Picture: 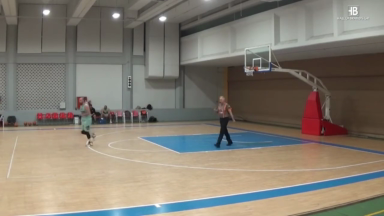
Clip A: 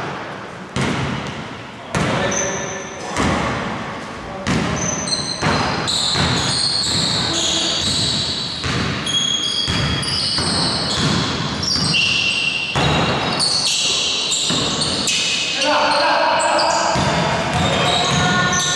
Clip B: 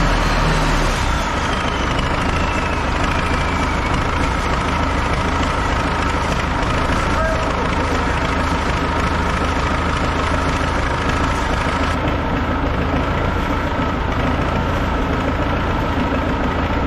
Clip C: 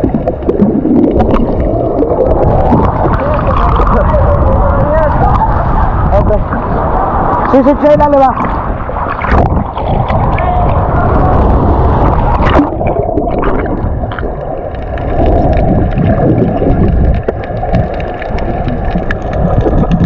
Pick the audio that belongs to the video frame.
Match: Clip A